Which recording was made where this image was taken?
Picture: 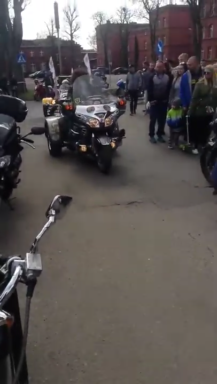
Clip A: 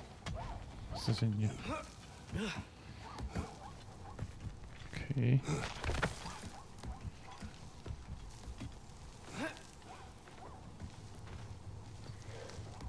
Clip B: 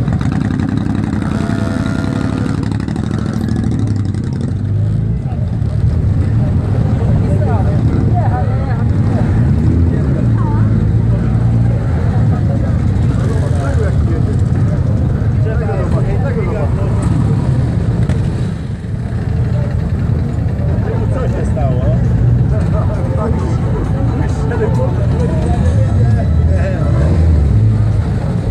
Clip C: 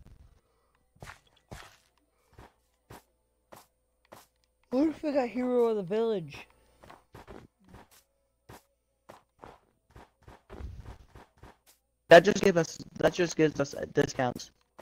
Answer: B